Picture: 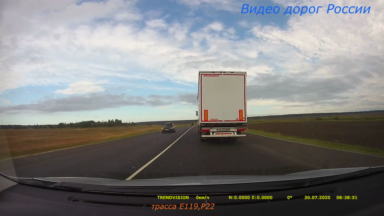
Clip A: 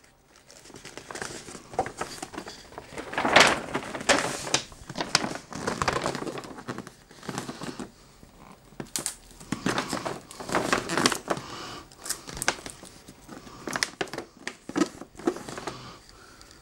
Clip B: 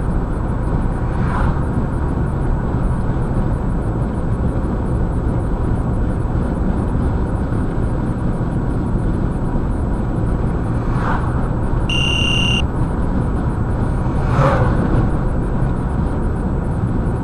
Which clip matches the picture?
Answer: B